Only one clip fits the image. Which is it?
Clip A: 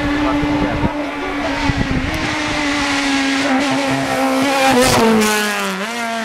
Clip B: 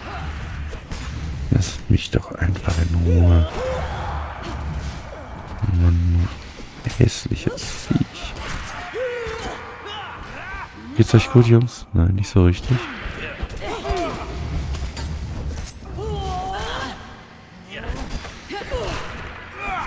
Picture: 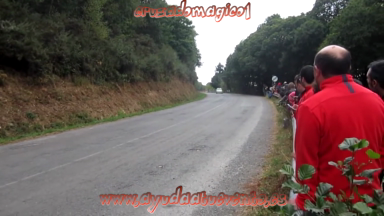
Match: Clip A